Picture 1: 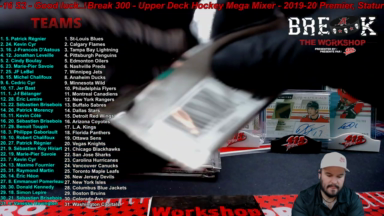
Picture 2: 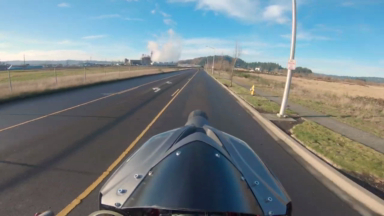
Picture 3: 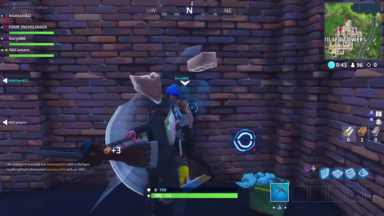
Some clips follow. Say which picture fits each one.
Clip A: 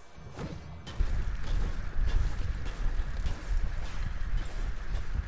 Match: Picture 3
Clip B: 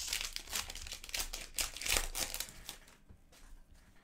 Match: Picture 1